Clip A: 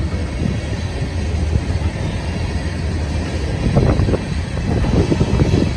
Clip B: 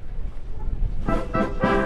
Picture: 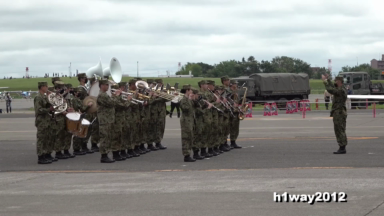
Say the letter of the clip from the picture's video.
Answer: B